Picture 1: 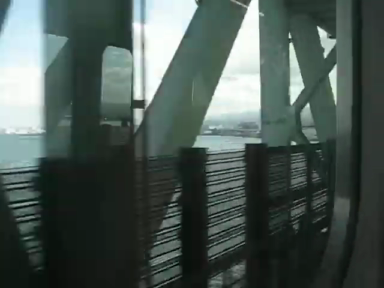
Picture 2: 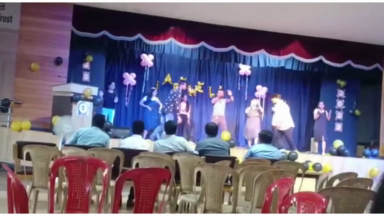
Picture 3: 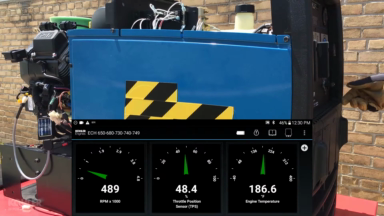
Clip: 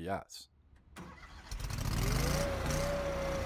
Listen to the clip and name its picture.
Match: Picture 3